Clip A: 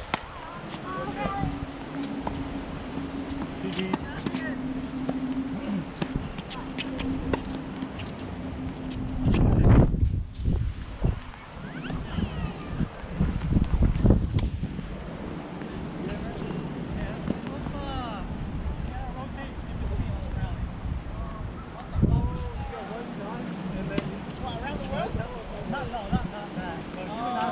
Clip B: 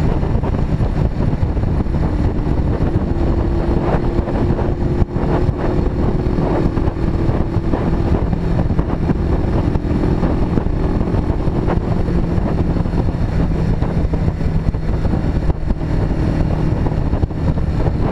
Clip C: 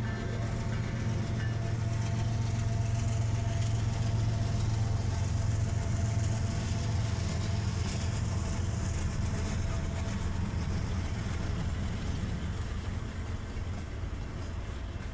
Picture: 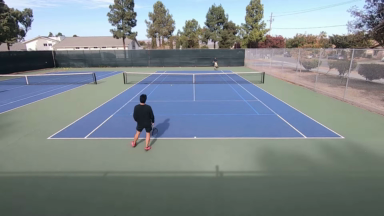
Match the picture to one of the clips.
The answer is A